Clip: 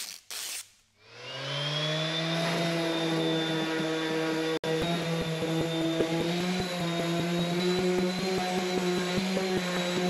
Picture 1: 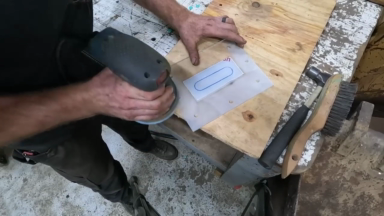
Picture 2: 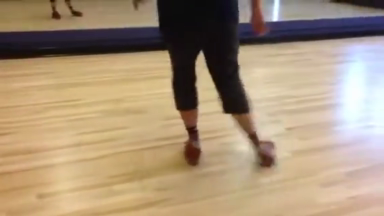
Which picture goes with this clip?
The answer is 1